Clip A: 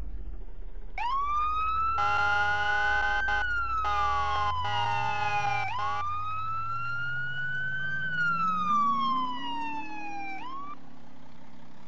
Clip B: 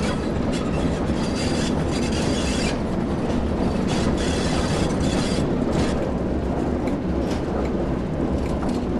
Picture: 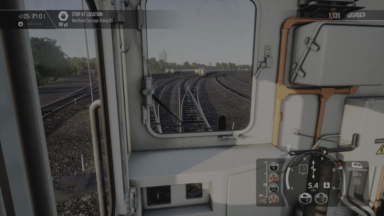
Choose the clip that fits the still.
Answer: B